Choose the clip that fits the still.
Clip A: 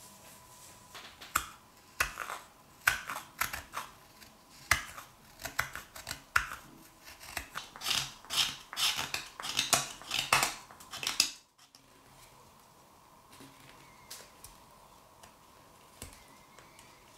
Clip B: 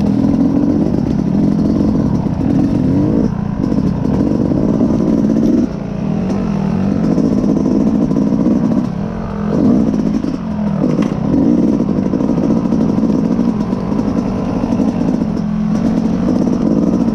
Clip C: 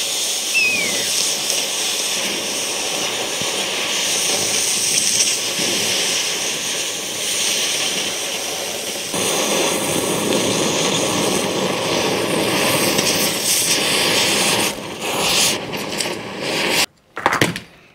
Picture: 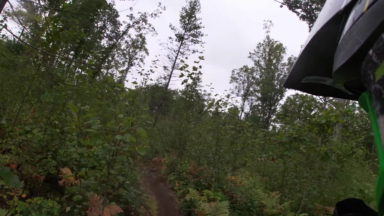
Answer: B